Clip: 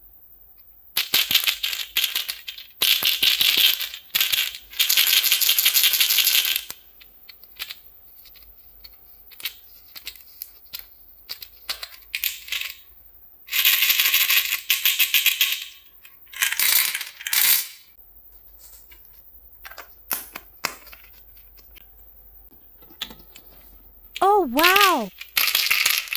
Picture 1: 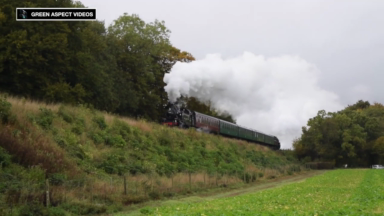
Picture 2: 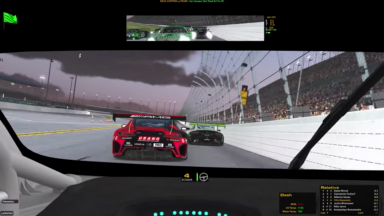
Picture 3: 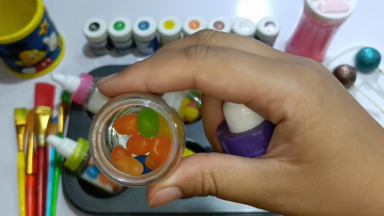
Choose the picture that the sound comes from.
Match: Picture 3